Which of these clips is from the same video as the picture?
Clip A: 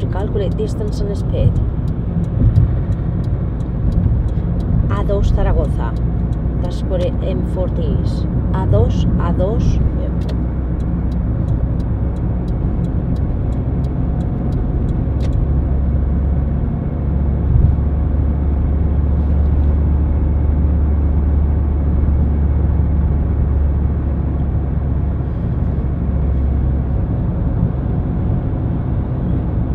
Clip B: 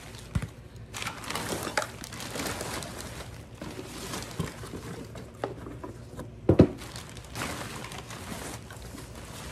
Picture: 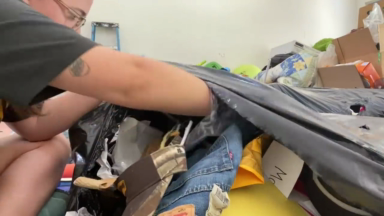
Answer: B